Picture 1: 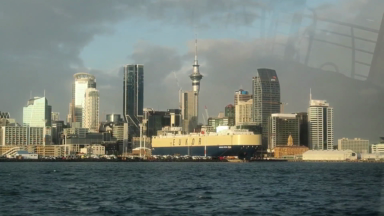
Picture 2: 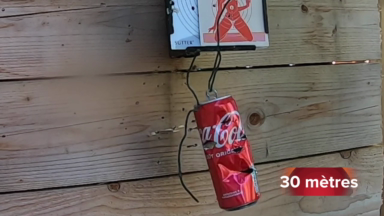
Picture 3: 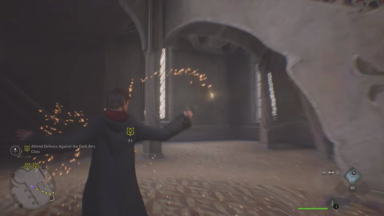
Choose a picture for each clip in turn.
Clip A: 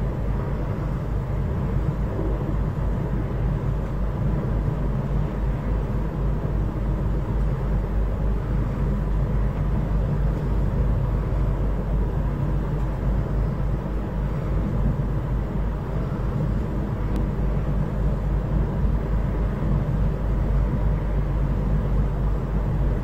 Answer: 1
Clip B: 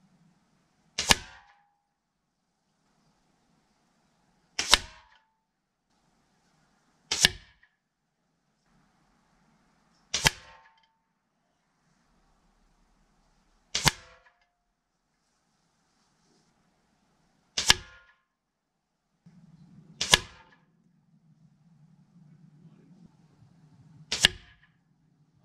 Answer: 2